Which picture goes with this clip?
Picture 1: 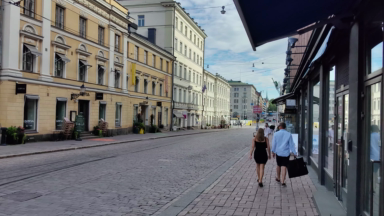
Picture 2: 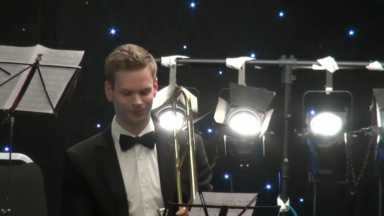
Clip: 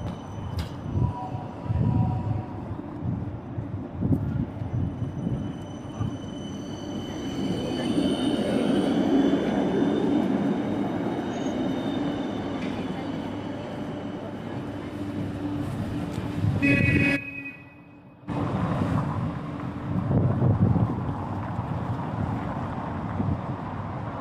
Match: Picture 1